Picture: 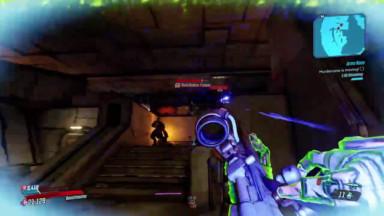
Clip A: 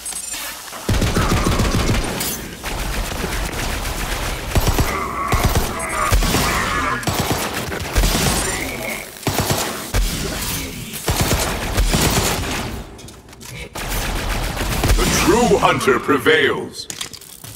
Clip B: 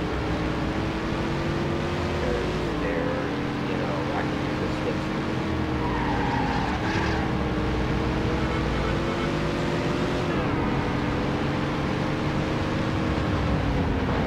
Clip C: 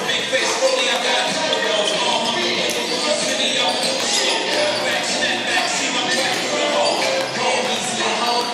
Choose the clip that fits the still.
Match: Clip A